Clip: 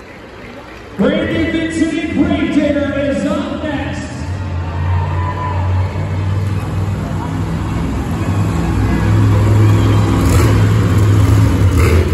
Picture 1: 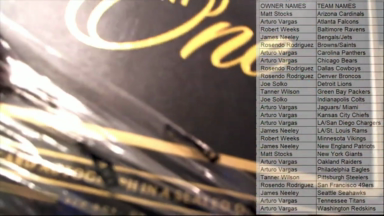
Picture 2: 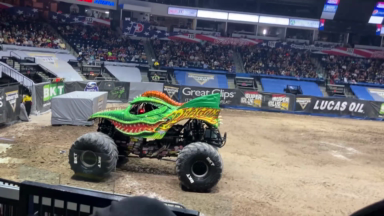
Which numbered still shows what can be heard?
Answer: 2